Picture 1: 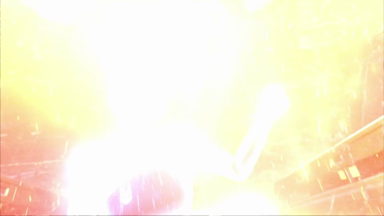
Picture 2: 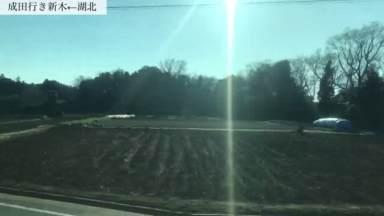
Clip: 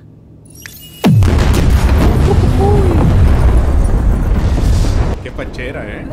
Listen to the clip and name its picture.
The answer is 1